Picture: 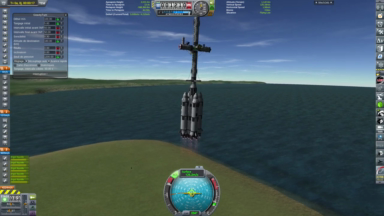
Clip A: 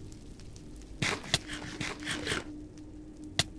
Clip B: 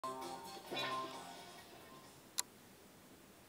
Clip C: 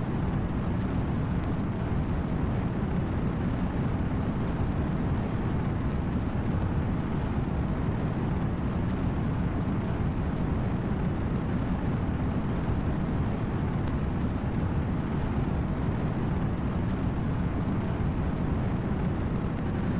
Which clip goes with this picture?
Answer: C